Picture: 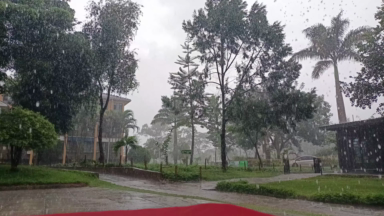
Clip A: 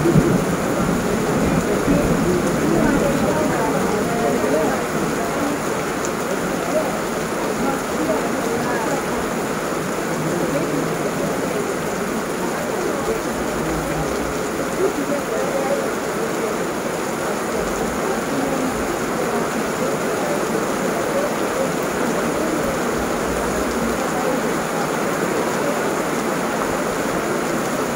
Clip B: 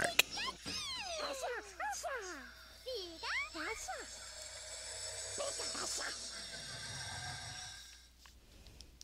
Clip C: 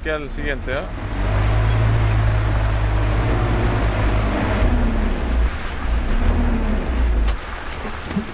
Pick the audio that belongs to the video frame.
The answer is A